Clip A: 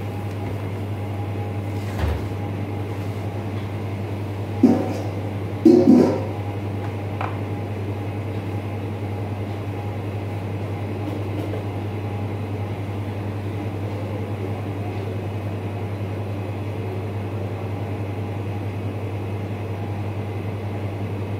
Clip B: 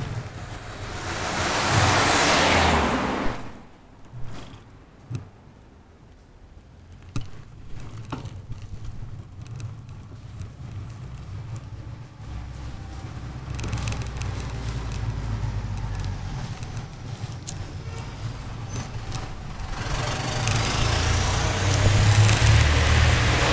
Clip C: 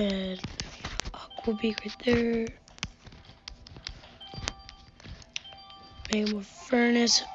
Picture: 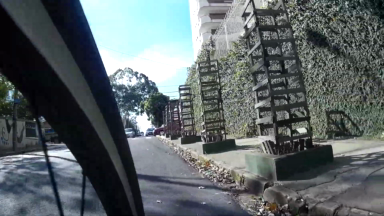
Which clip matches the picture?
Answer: B